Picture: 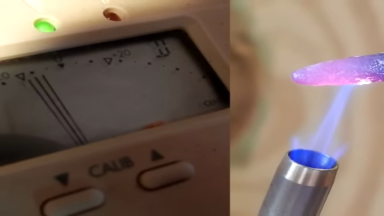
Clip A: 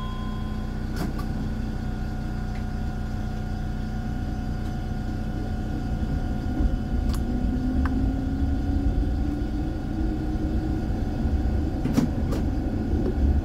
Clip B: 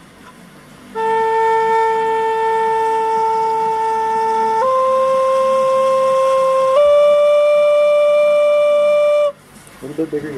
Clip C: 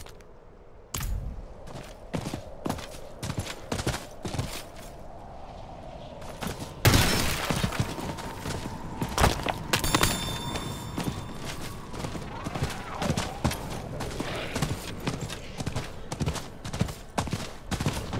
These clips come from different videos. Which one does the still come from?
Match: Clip B